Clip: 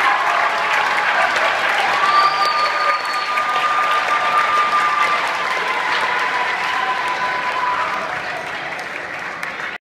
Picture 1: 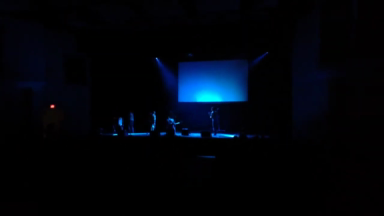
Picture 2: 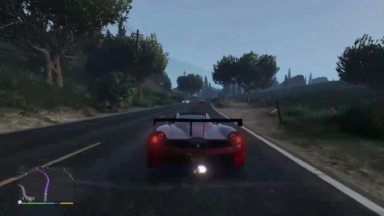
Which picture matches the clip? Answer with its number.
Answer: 1